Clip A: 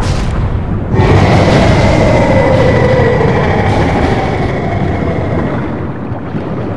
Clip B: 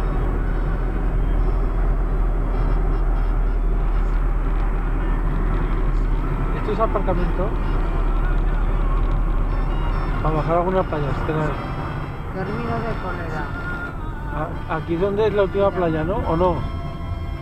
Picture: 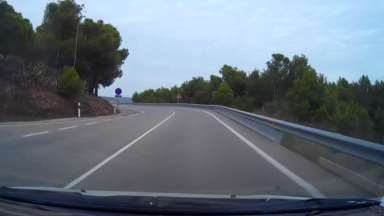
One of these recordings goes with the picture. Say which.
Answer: B